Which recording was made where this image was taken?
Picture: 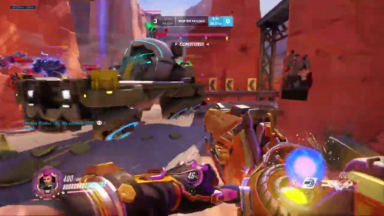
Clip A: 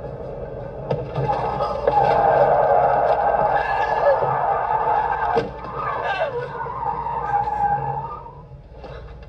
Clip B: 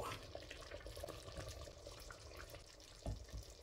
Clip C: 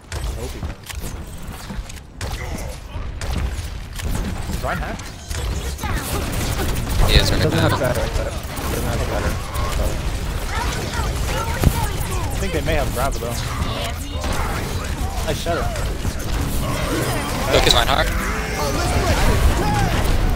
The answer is C